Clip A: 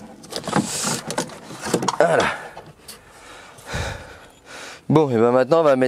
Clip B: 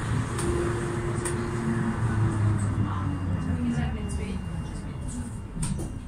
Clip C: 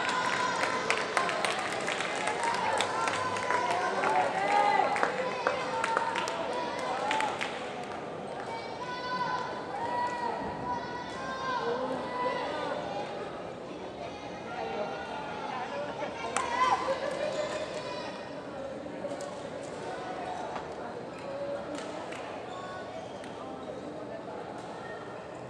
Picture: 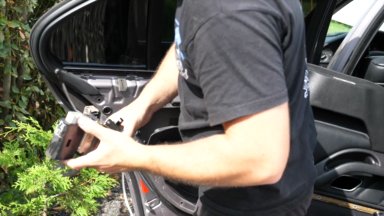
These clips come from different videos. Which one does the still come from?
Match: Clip A